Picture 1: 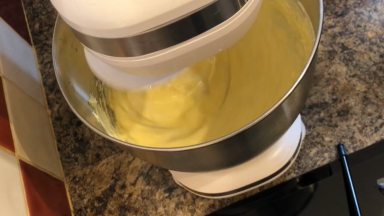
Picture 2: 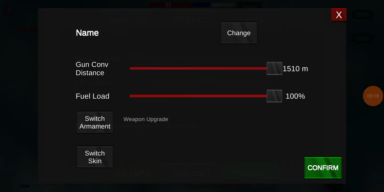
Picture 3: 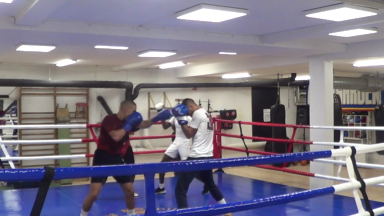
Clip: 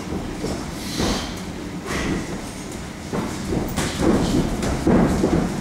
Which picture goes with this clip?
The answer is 3